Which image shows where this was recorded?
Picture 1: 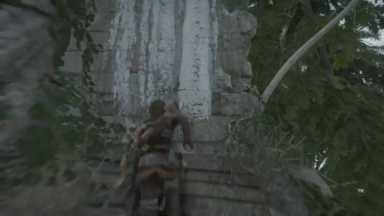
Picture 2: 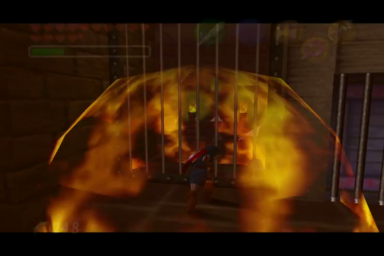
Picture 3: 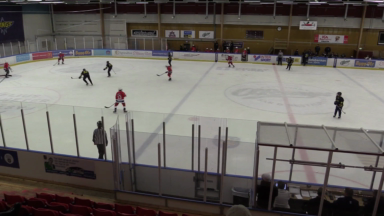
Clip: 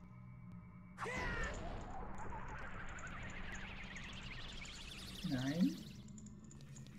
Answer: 2